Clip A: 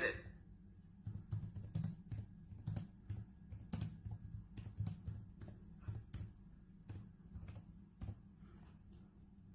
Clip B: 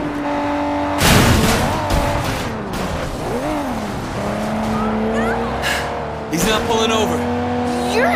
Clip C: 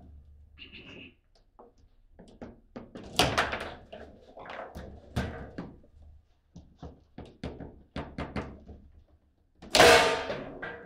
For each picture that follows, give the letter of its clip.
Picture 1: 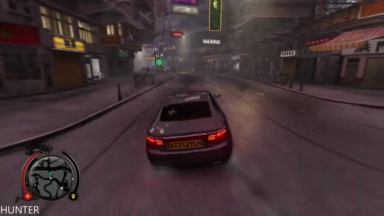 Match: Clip B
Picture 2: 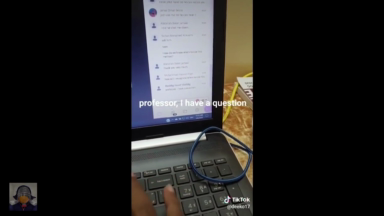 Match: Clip A